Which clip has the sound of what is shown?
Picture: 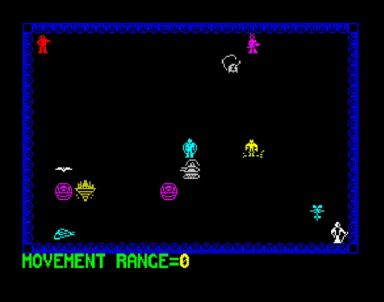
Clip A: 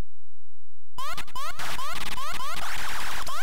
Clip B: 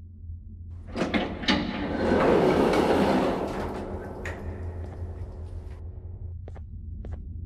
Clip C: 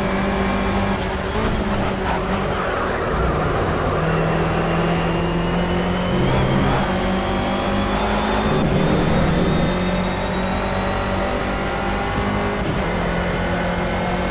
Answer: A